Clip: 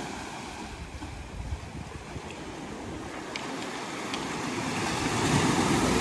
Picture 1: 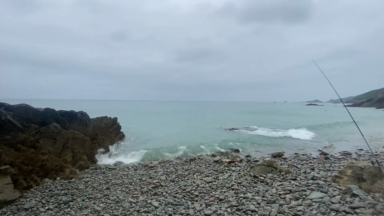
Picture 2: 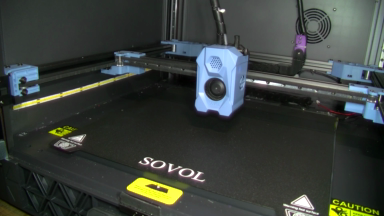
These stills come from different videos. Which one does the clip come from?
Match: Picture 1